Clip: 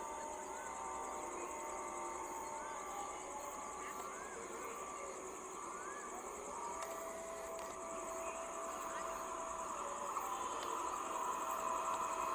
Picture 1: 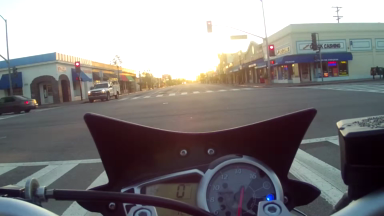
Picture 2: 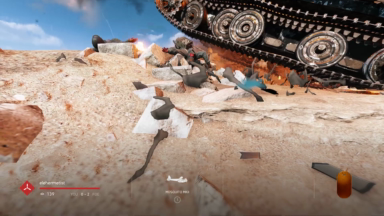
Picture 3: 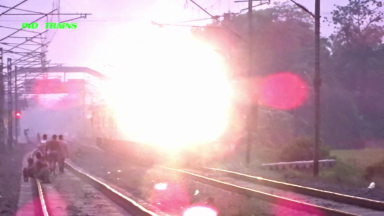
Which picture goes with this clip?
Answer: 3